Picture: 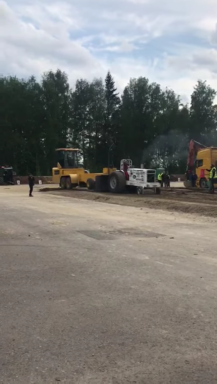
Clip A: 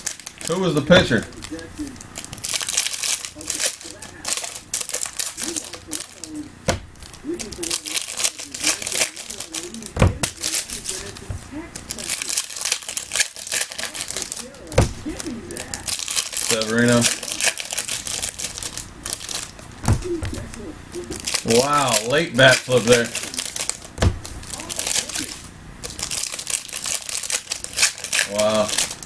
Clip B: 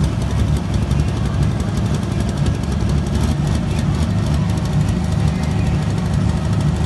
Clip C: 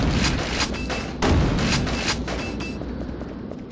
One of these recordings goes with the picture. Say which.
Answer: B